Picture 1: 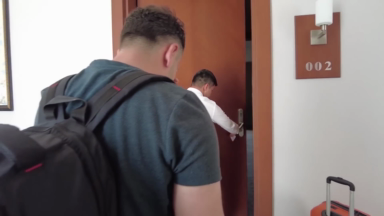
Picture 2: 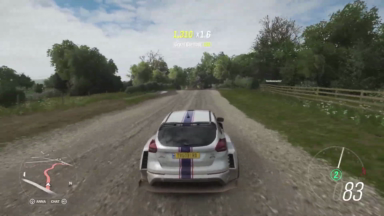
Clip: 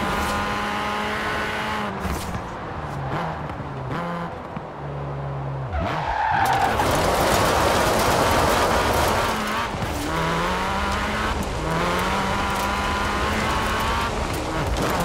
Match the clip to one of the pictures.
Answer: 2